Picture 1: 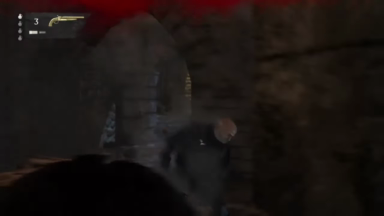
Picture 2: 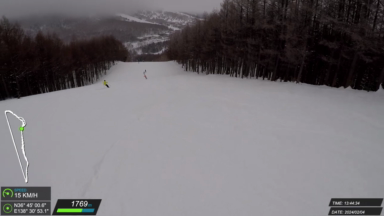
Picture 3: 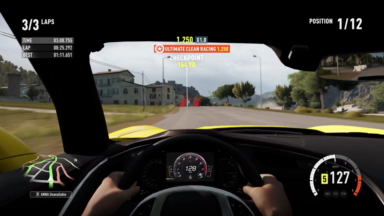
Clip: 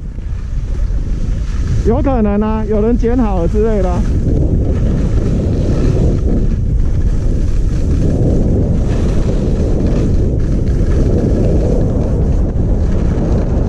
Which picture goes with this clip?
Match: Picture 2